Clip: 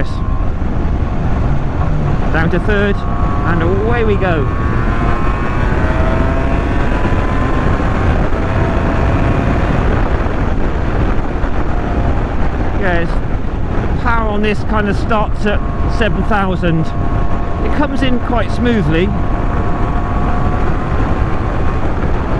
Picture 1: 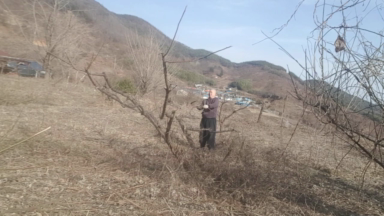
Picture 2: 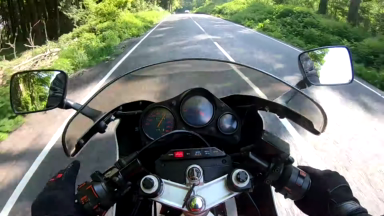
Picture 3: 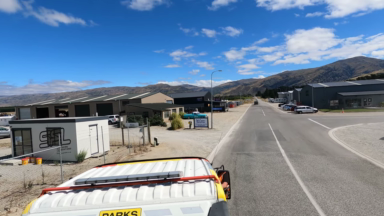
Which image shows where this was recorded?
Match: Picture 2